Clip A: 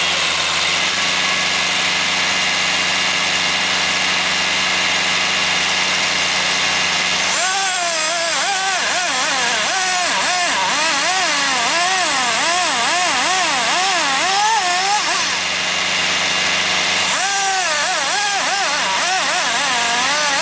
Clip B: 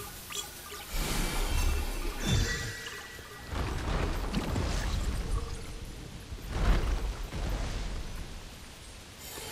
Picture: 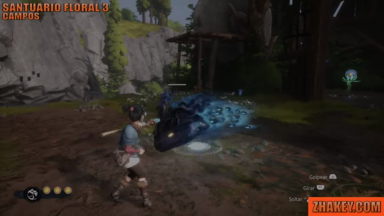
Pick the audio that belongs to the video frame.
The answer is B